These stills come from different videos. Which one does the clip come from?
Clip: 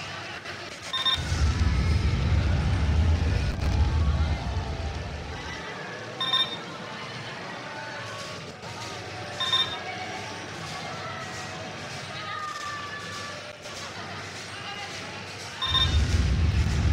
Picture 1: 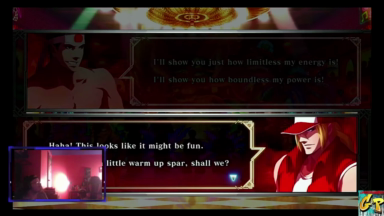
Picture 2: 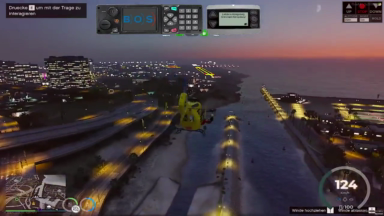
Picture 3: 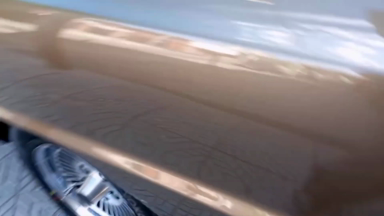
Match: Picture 1